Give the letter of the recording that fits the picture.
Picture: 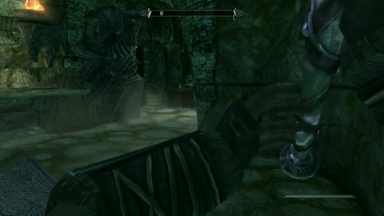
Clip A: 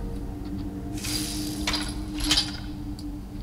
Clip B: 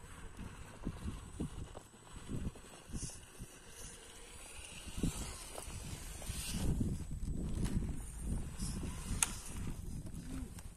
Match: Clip A